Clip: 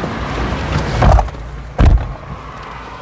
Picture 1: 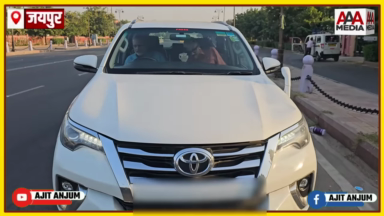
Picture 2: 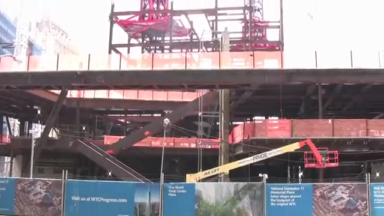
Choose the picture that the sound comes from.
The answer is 1